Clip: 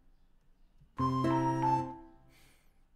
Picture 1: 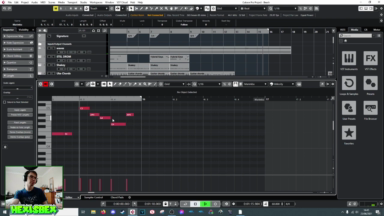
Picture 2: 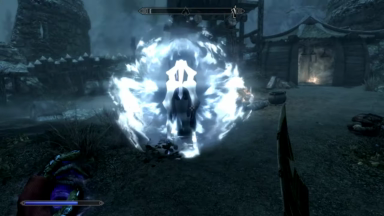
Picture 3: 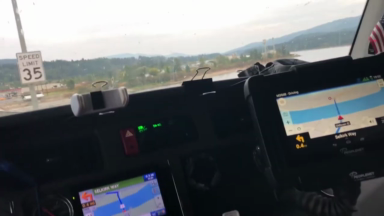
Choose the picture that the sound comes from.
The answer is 1